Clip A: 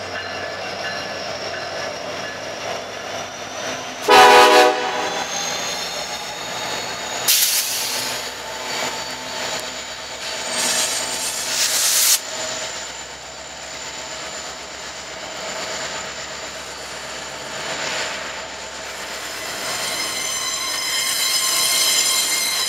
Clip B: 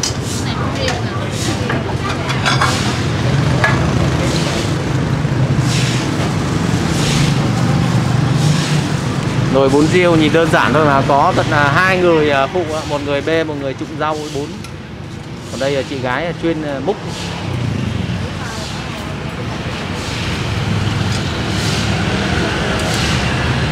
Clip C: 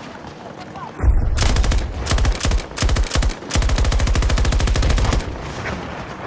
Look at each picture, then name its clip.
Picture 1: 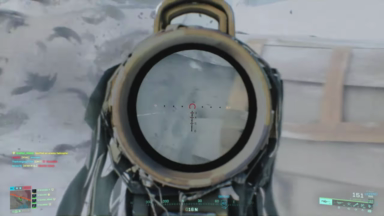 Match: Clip C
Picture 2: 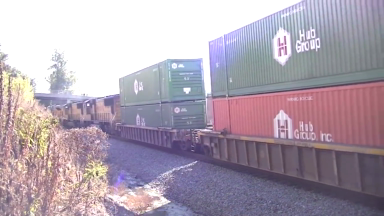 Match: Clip A